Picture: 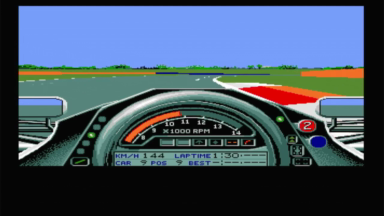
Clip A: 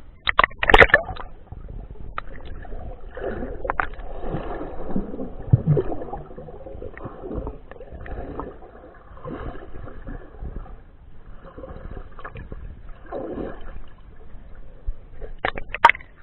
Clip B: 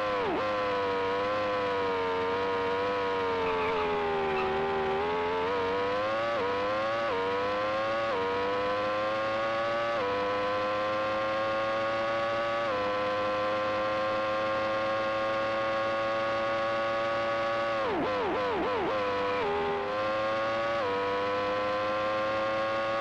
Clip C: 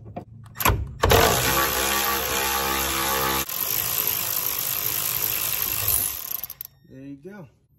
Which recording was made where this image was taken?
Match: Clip B